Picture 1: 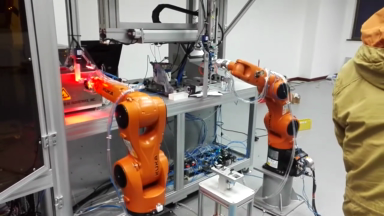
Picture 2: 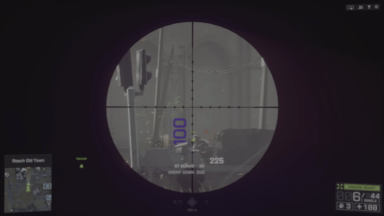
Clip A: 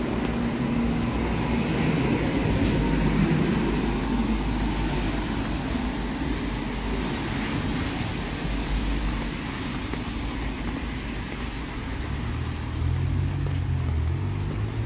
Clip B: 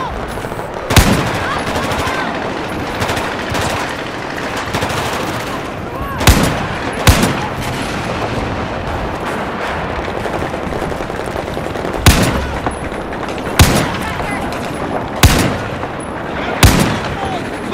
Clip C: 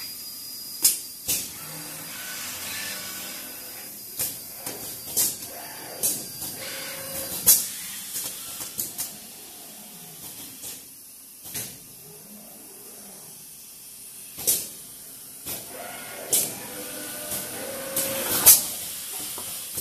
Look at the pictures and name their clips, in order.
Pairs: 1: C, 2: B